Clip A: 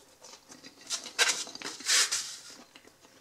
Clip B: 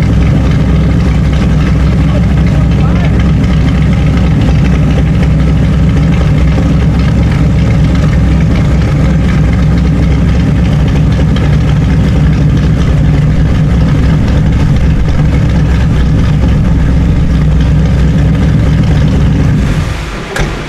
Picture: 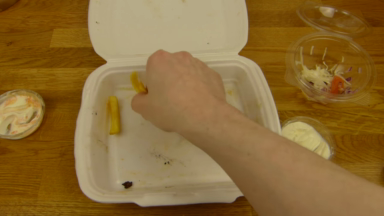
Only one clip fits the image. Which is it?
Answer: A